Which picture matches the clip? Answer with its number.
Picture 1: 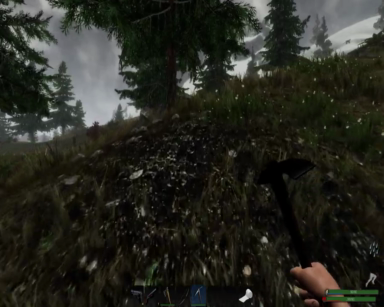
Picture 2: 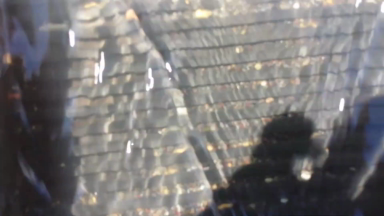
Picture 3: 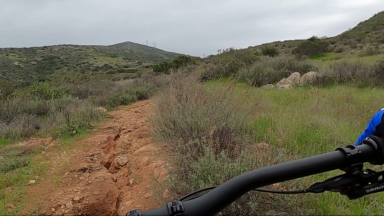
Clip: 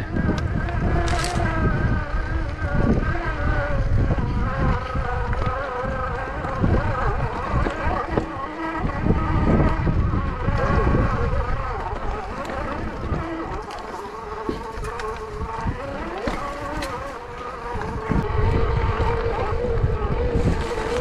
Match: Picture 3